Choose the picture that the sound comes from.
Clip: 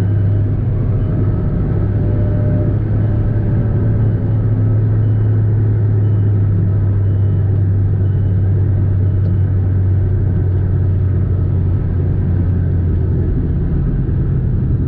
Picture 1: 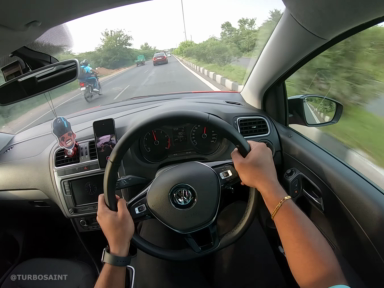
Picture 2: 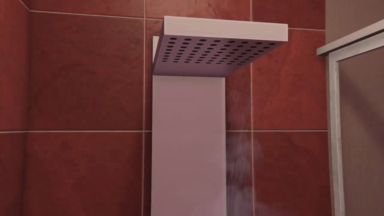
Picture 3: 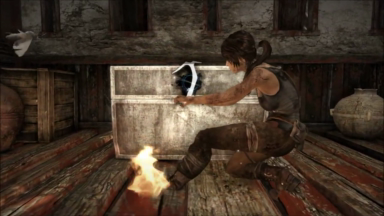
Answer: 1